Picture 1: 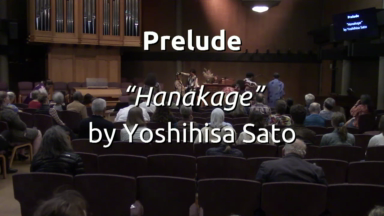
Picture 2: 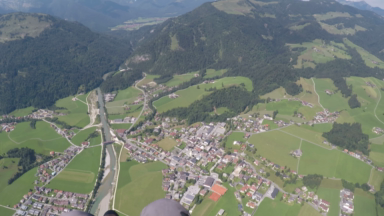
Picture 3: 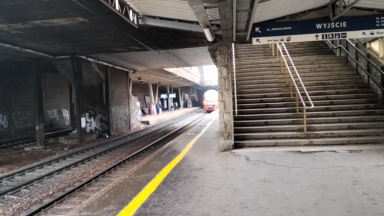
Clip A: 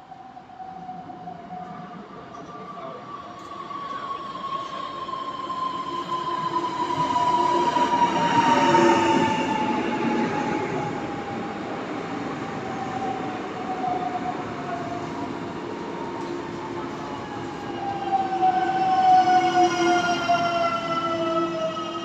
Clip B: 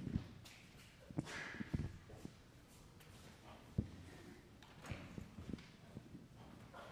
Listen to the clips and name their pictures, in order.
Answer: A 3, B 1